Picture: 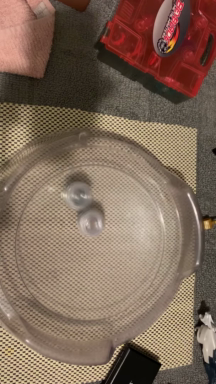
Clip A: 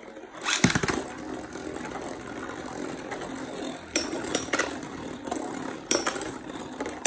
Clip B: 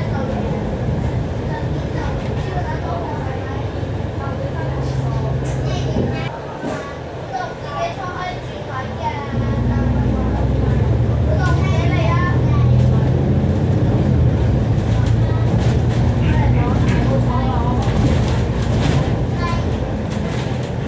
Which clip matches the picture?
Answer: A